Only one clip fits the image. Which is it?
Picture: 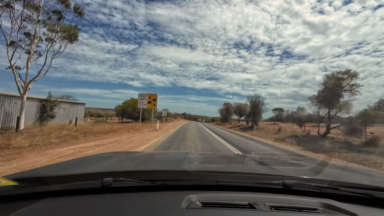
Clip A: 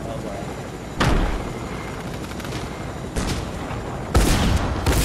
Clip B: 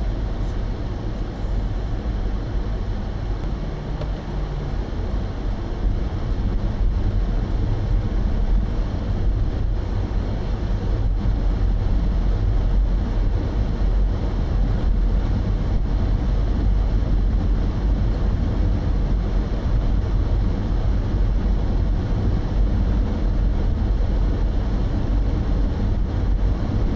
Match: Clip B